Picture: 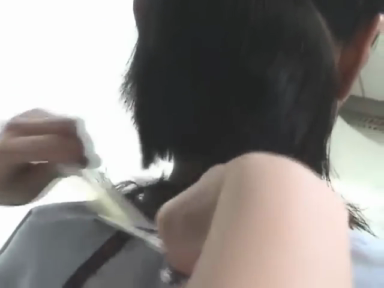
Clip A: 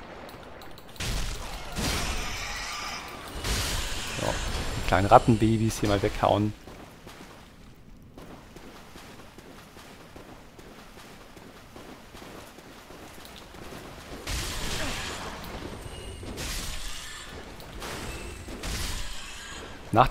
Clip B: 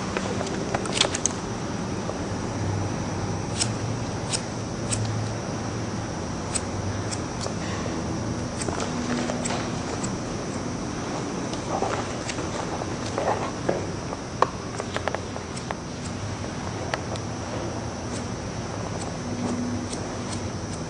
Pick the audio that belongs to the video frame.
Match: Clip B